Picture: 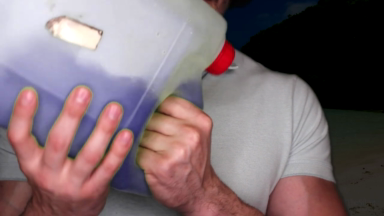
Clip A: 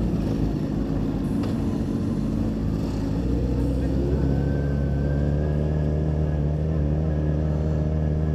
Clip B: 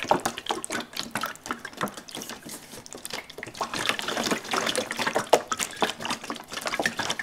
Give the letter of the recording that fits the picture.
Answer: B